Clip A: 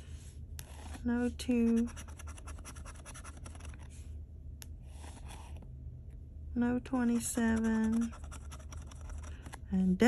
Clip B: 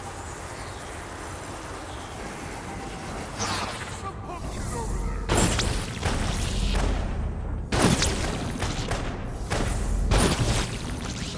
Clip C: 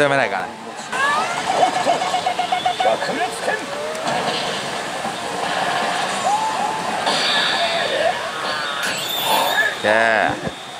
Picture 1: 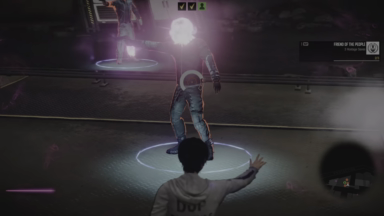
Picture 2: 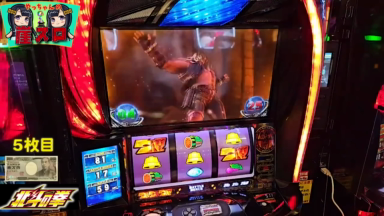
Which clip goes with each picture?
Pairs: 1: B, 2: C